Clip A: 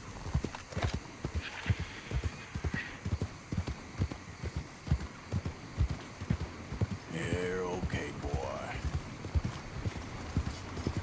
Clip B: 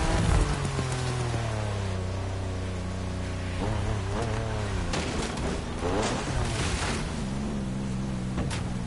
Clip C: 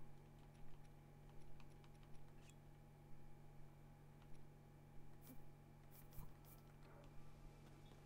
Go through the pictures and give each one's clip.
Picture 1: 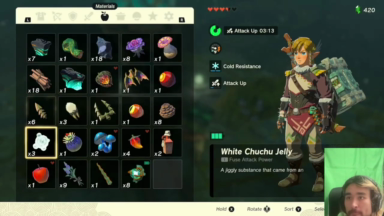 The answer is C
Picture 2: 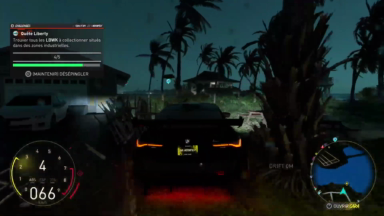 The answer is B